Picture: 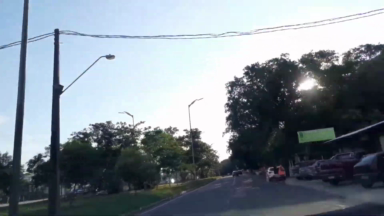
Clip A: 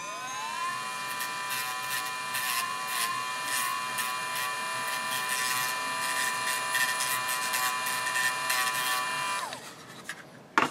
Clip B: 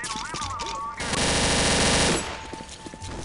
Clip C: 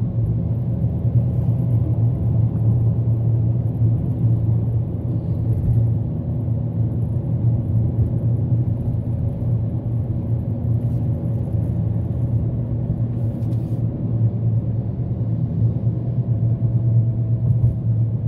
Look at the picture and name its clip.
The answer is C